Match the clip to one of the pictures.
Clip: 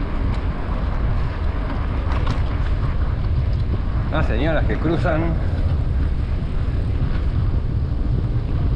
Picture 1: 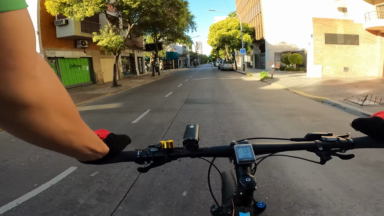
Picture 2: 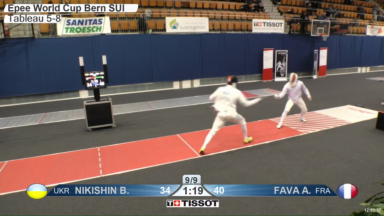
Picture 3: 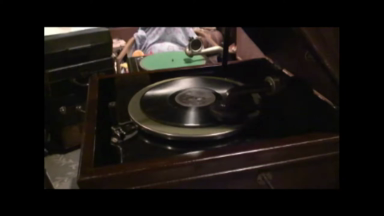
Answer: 1